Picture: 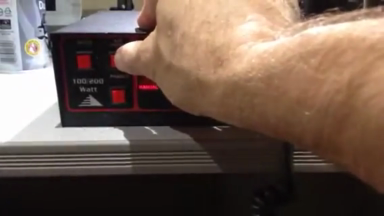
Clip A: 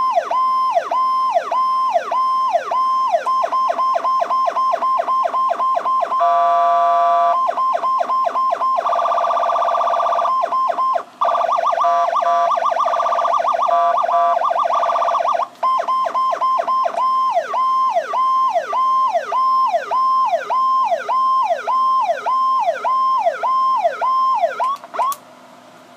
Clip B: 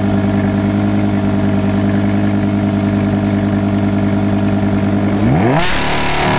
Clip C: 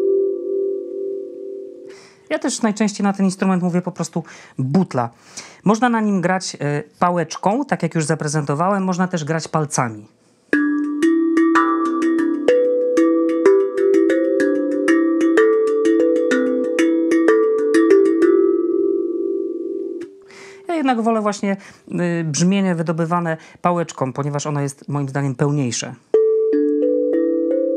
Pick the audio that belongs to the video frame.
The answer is A